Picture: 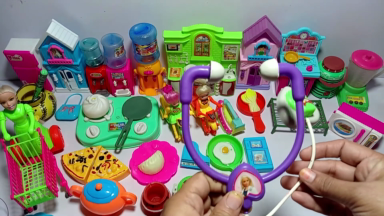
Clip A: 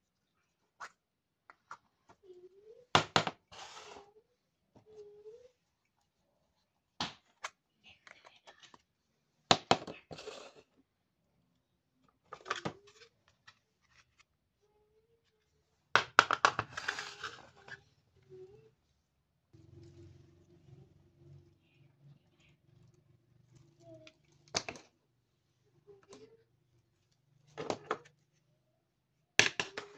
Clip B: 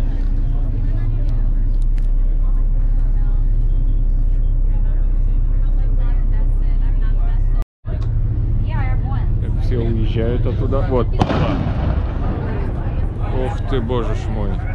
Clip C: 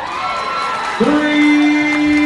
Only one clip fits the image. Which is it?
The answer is A